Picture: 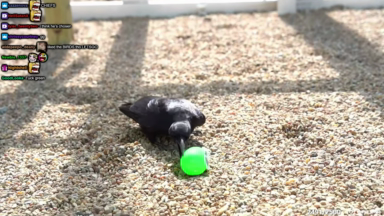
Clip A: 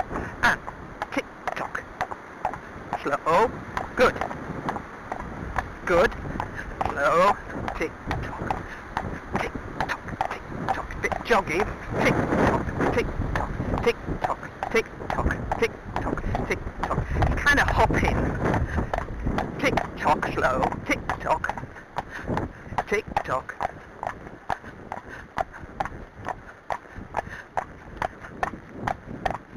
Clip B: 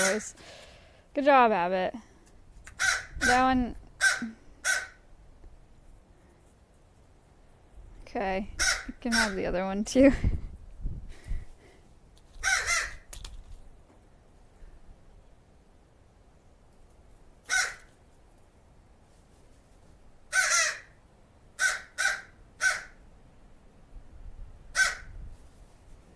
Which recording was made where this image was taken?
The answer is B